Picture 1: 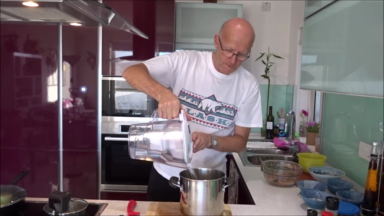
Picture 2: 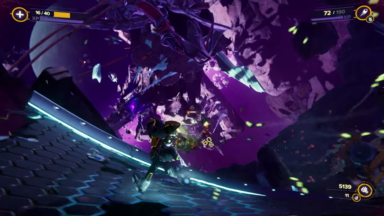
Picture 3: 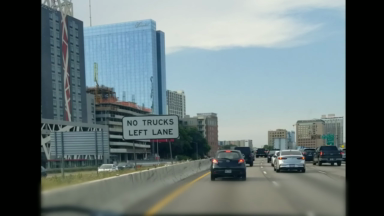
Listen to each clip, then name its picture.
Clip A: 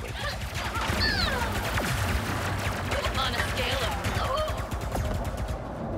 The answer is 2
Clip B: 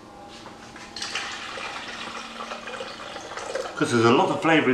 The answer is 1